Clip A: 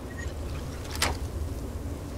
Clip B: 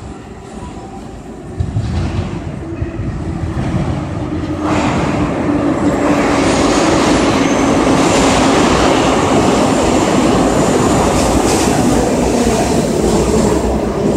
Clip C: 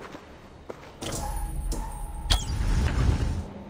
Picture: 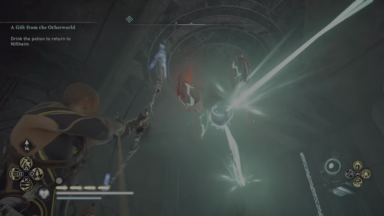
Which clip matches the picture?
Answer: C